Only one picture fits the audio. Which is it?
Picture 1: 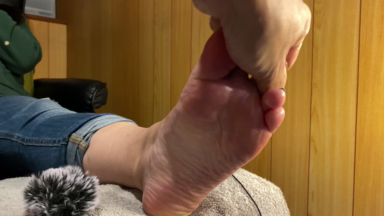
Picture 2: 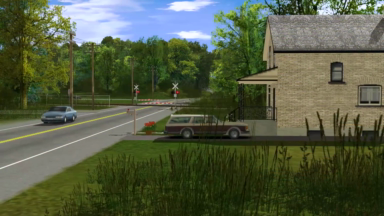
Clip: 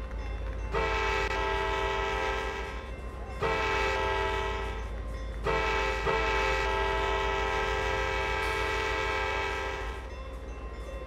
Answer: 2